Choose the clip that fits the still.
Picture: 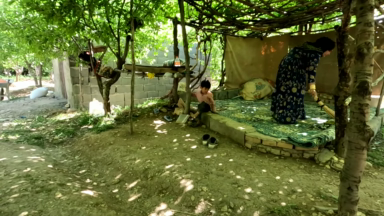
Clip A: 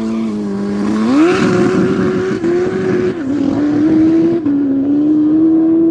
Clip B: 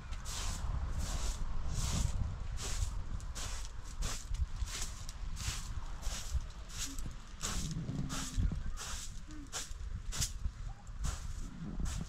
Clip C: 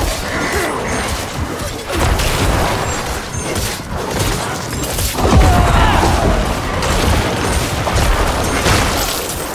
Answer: B